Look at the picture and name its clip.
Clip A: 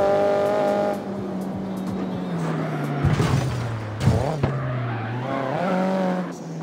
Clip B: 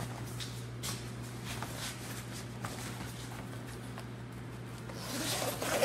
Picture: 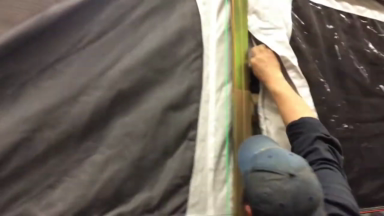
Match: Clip B